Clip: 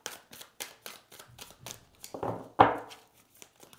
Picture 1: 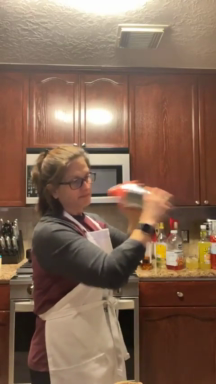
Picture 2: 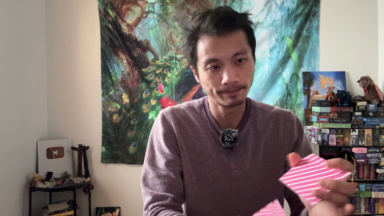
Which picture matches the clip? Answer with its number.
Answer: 2